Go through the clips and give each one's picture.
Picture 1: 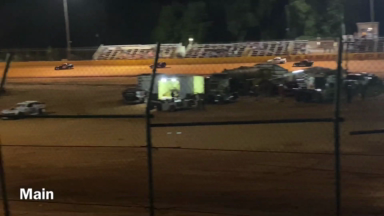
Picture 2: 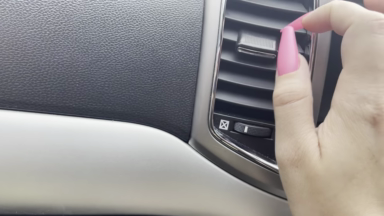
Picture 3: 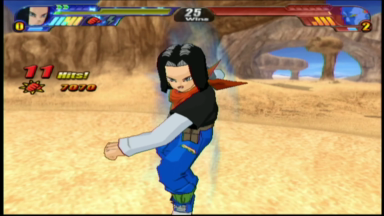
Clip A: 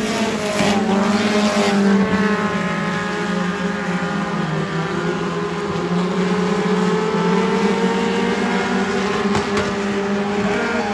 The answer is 1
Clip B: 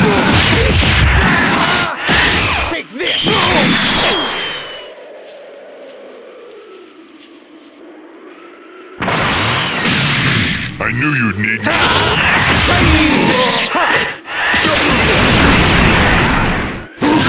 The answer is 3